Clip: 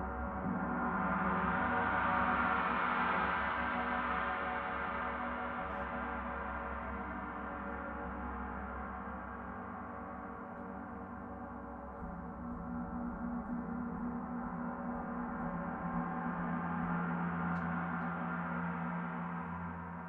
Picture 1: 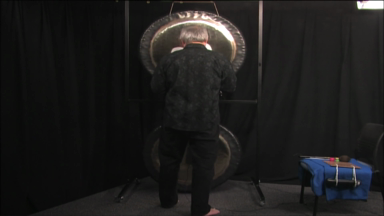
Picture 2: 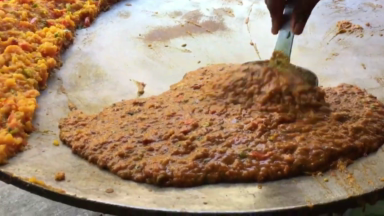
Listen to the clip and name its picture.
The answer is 1